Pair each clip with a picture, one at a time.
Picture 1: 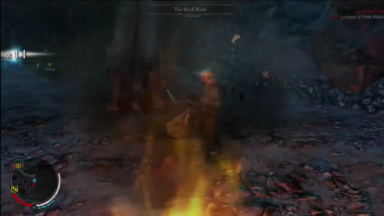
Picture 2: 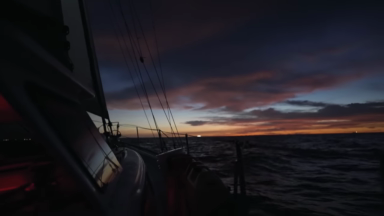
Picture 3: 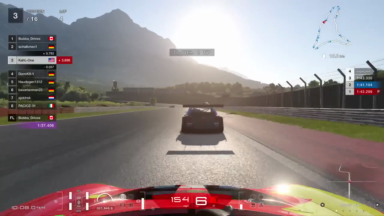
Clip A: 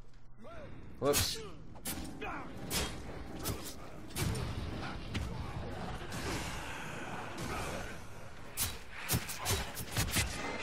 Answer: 1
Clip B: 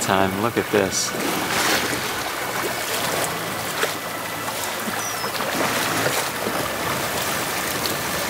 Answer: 2